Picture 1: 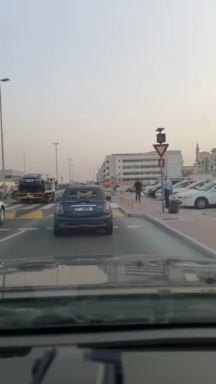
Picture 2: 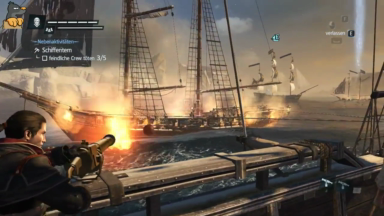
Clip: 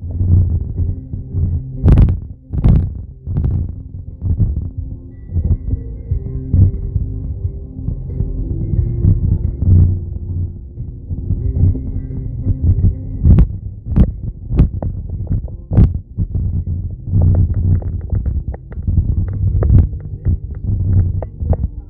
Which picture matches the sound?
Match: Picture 1